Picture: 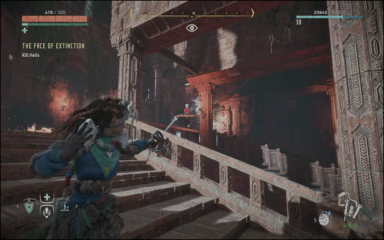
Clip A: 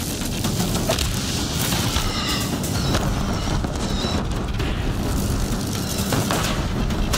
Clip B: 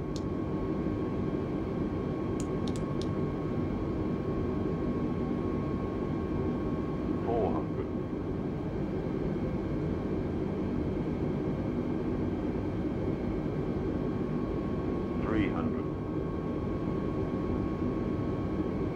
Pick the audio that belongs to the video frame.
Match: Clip A